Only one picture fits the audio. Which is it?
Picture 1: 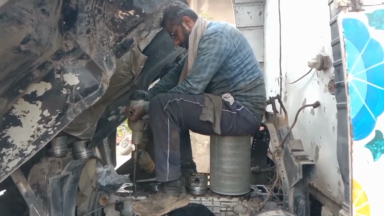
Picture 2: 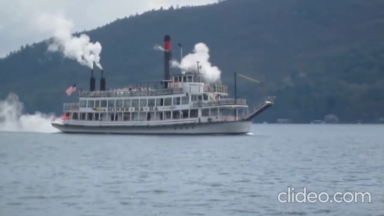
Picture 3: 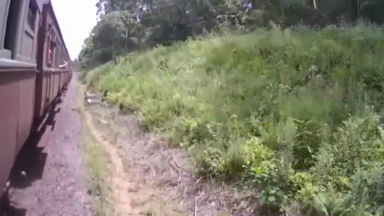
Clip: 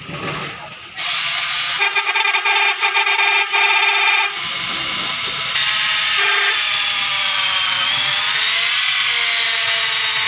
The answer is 1